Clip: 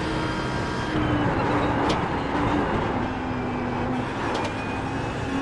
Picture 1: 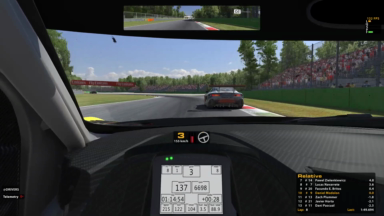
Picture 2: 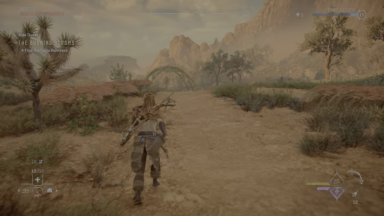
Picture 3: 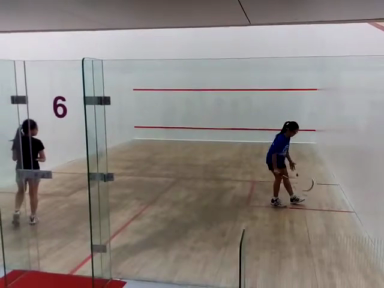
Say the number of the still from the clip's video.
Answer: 1